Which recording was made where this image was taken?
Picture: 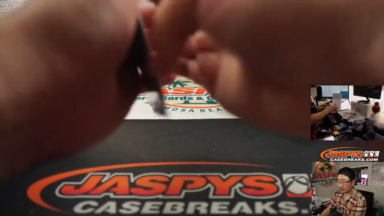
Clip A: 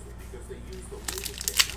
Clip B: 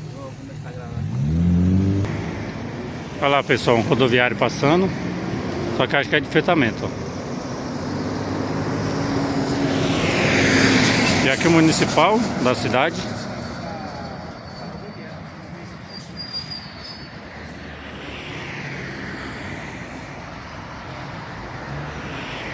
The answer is A